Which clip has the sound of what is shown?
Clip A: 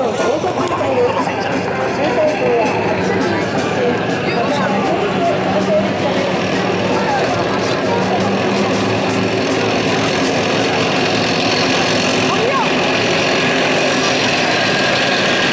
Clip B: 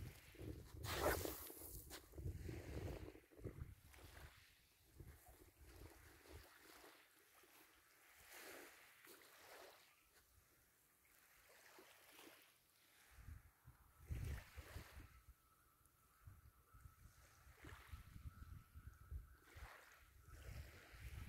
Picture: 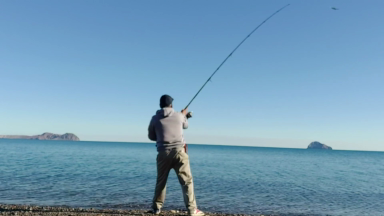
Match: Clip B